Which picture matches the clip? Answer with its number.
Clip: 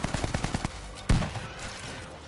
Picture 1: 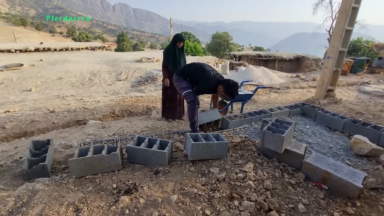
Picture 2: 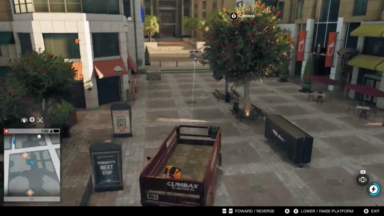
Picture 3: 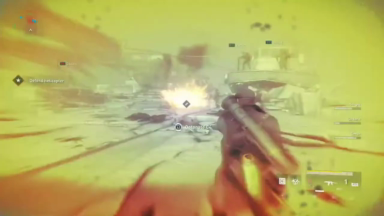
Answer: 3